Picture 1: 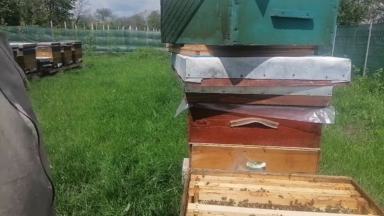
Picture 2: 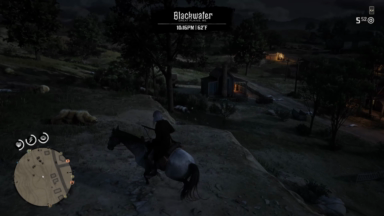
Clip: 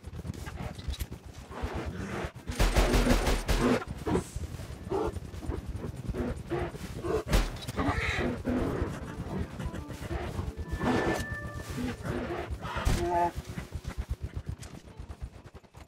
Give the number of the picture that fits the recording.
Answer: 2